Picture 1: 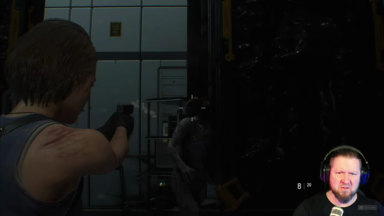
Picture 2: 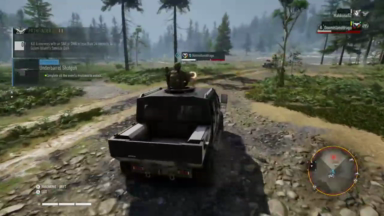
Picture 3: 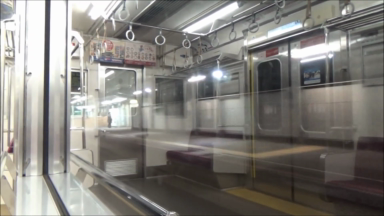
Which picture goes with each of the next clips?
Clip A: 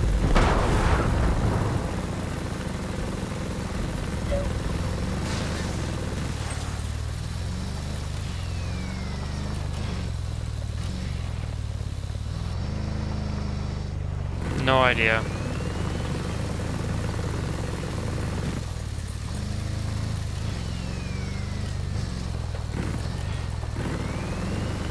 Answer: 2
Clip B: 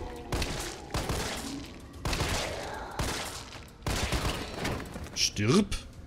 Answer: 1